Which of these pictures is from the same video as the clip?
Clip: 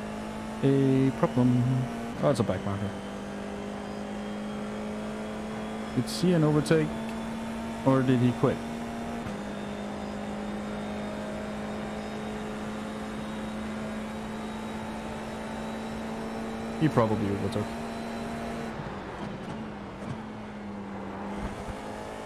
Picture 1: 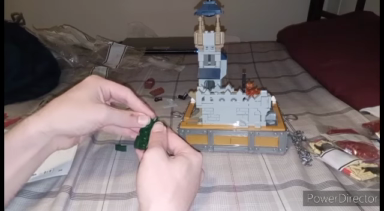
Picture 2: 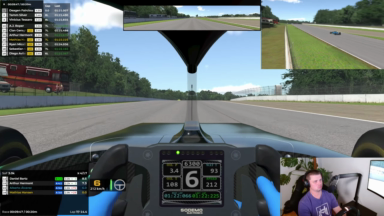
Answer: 2